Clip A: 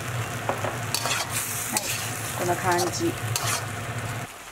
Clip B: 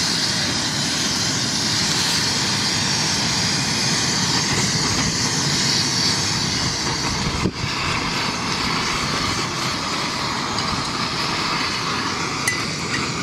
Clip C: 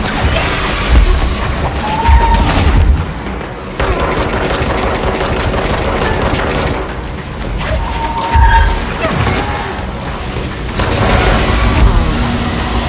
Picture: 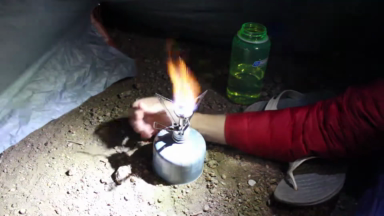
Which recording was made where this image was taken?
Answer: B